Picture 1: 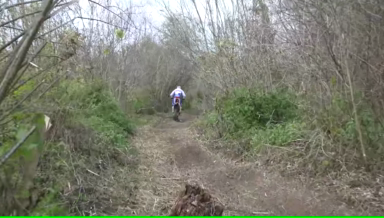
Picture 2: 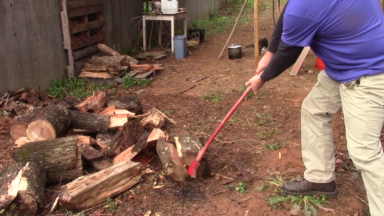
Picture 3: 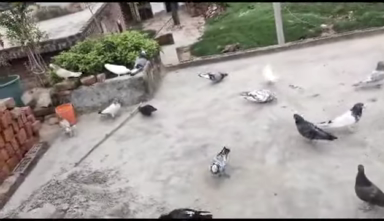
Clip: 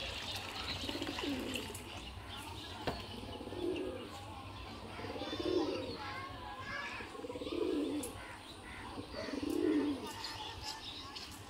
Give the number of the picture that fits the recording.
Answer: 3